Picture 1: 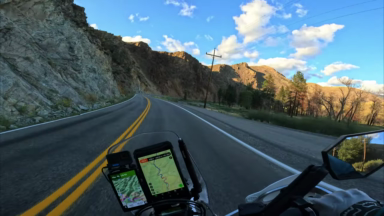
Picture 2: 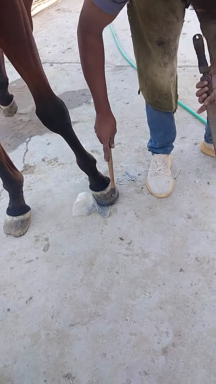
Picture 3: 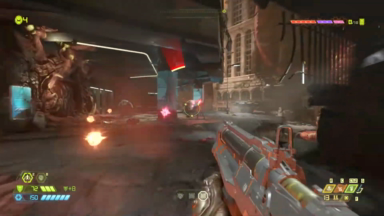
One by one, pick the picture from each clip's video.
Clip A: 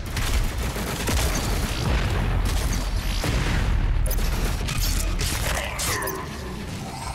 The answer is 3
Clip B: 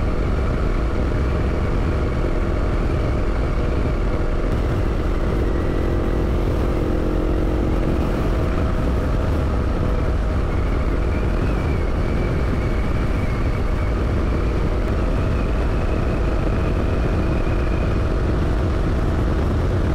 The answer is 1